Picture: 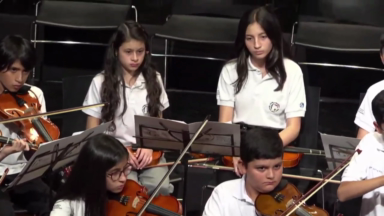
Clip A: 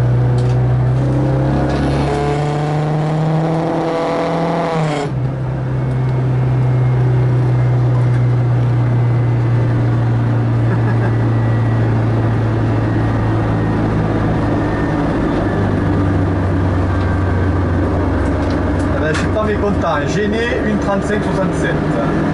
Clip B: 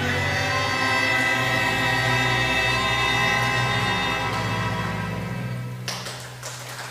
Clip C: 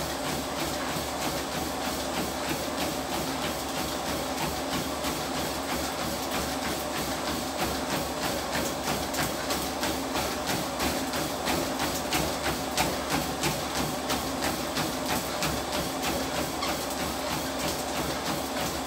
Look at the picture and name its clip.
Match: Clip B